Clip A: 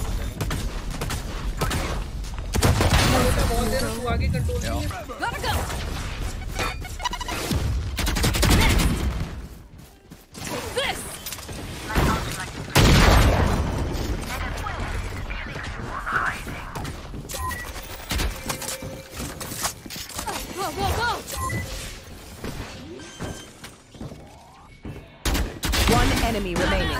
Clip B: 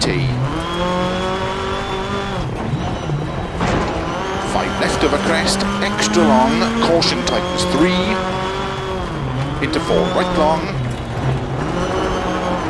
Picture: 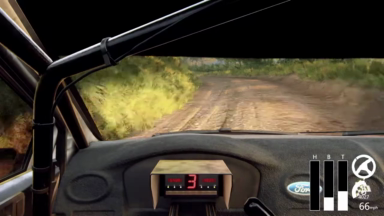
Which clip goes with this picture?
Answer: B